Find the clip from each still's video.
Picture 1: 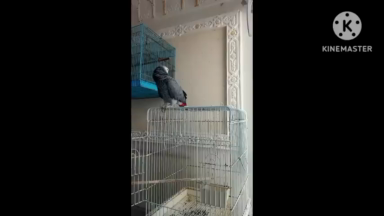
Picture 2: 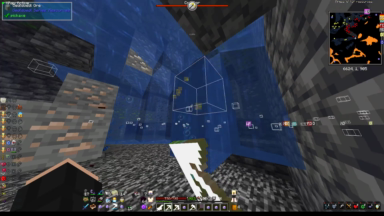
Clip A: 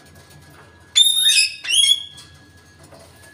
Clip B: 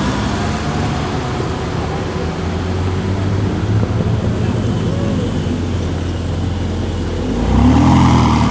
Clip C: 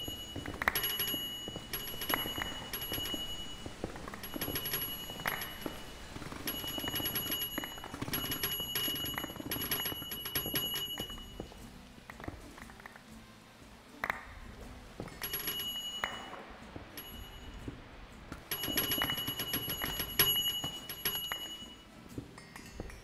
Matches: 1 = A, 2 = C